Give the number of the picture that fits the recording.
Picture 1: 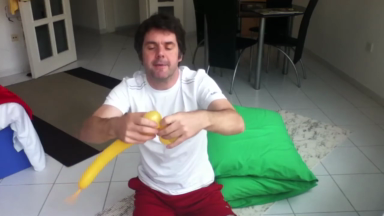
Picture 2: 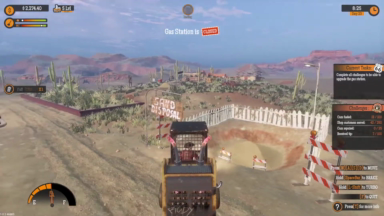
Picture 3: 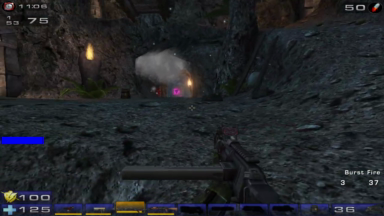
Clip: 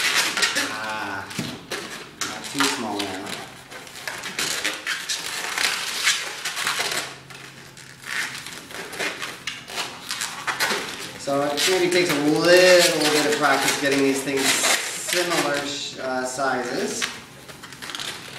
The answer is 1